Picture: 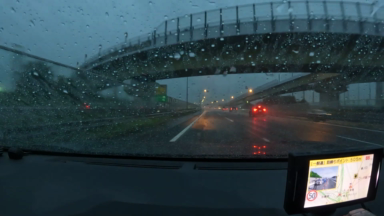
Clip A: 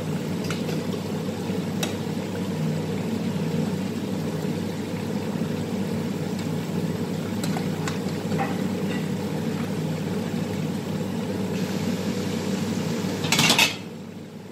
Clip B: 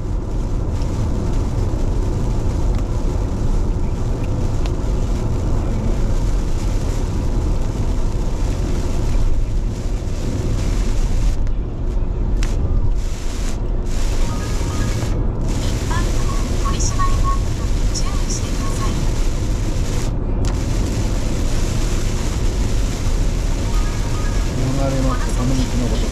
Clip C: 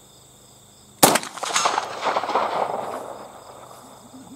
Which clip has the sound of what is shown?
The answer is B